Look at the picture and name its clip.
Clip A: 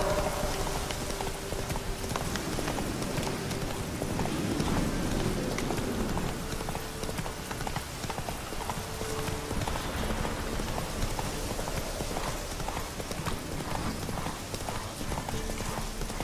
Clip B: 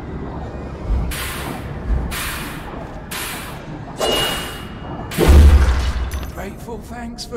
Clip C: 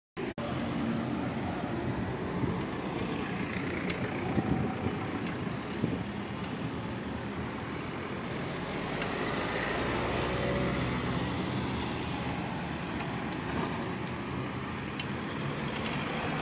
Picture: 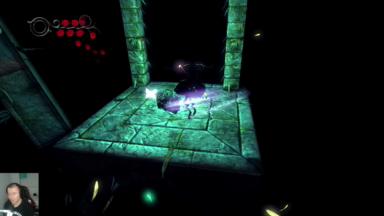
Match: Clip B